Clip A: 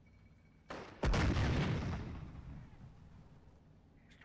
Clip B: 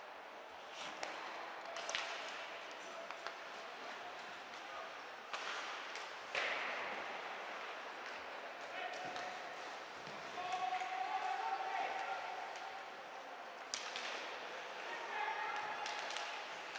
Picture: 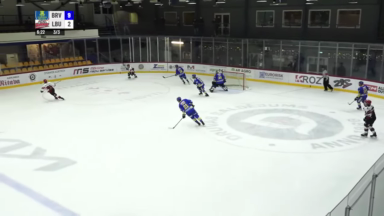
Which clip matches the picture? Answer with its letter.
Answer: B